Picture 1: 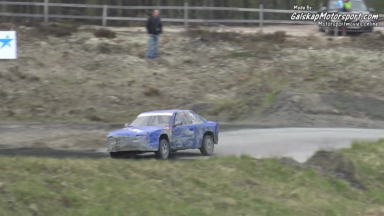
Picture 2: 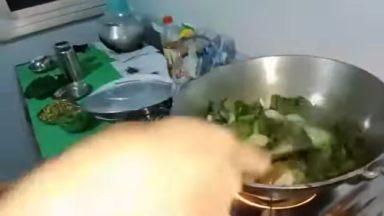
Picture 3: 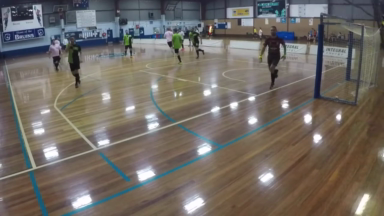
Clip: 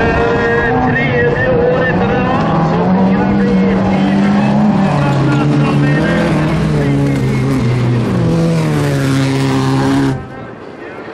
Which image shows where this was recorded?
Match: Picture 1